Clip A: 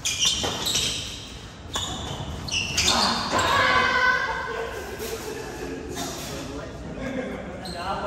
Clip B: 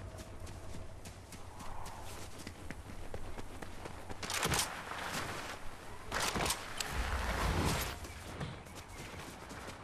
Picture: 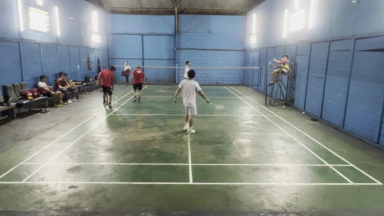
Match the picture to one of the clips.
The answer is A